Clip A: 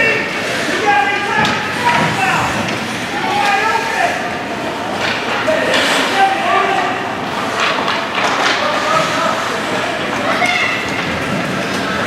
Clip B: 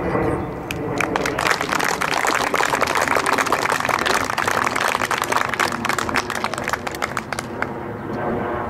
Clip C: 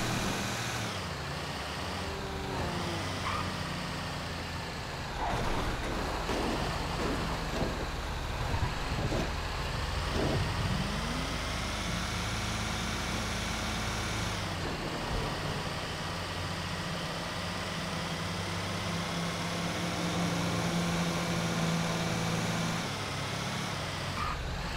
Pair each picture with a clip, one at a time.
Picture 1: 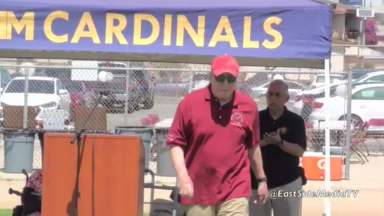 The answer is B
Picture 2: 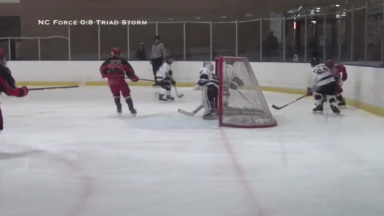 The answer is A